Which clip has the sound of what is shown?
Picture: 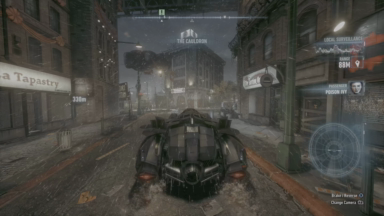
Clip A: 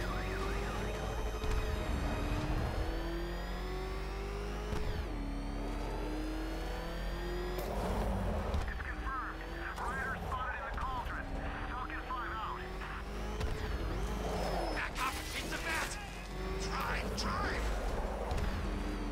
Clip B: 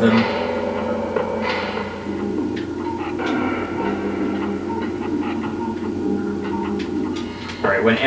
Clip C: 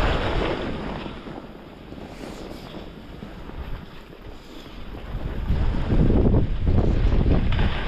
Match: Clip A